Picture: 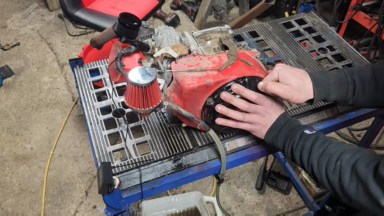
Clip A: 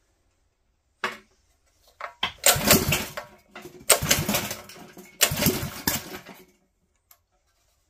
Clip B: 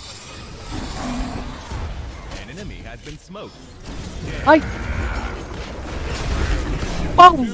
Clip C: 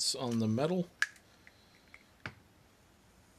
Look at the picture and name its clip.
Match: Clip A